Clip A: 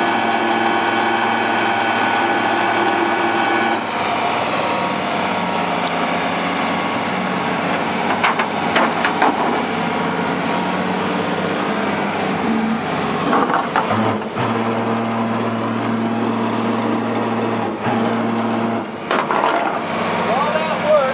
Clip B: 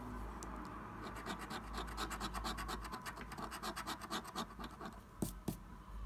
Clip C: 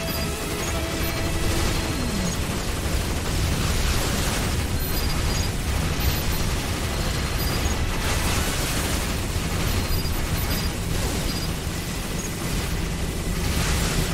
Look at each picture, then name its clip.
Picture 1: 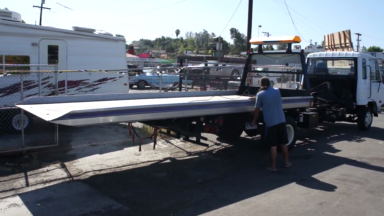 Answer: A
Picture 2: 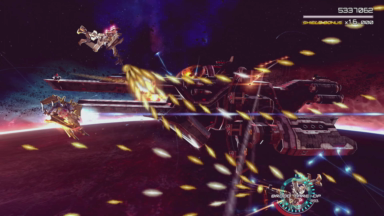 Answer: C